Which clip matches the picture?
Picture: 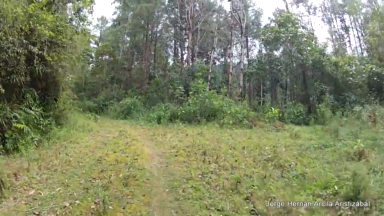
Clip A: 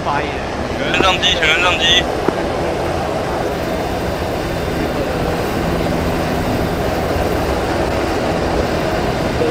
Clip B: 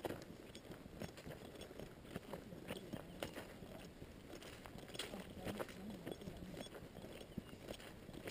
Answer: B